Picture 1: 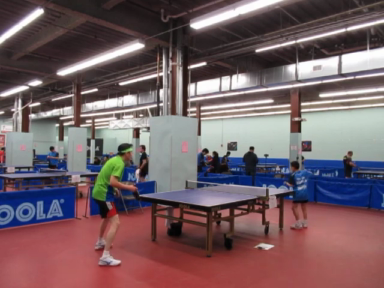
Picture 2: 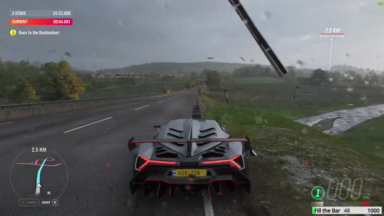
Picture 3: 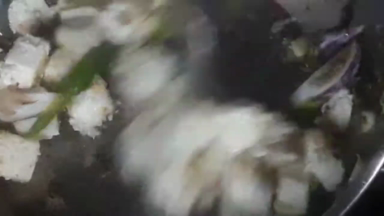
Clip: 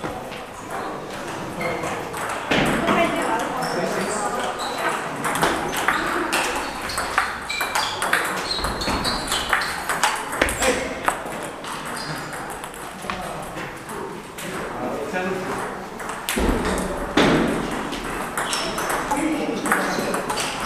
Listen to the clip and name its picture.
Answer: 1